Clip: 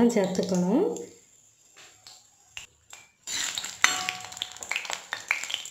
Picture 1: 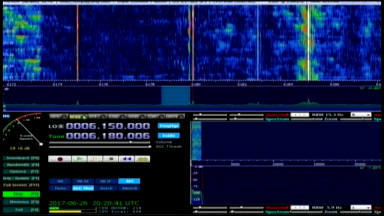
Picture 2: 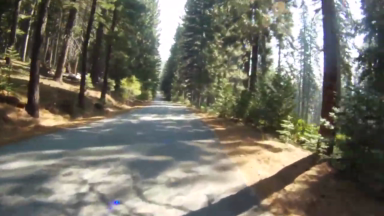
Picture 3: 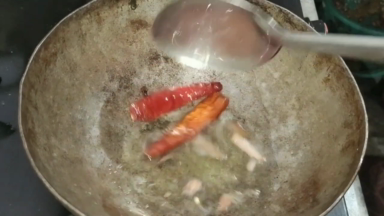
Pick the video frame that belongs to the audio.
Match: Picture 3